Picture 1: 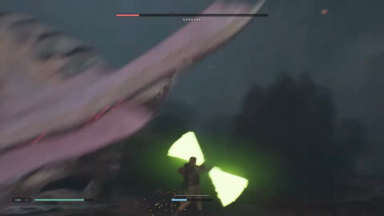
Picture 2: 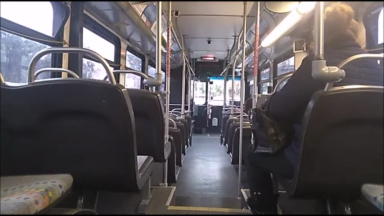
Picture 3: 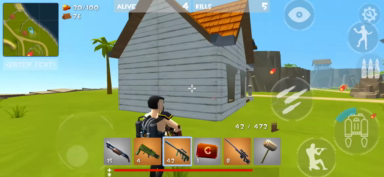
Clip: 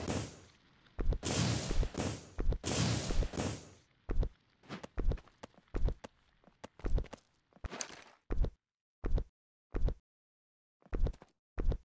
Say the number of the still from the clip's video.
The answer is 3